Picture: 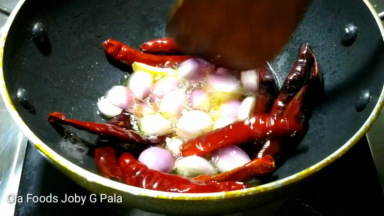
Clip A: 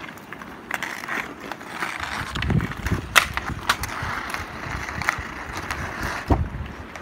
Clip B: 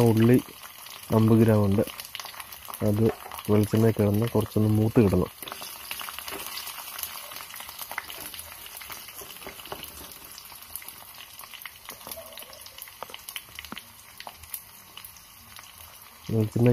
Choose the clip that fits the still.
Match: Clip B